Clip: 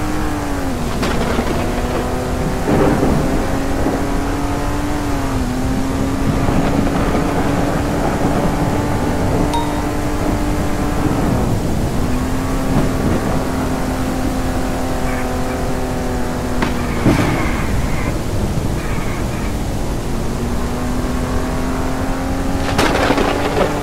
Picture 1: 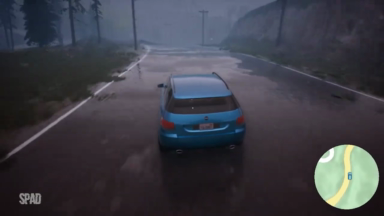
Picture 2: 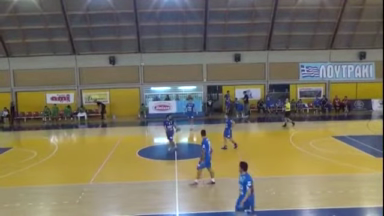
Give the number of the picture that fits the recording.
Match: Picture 1